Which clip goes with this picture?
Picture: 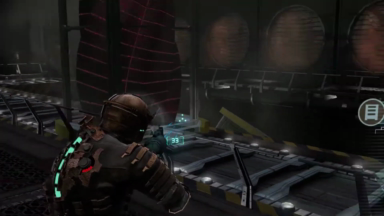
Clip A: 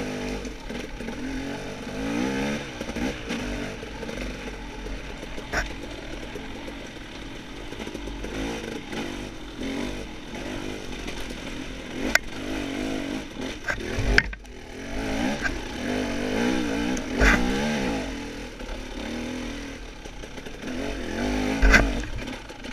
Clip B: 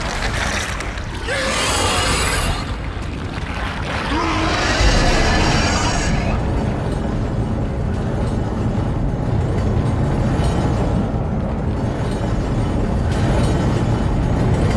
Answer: B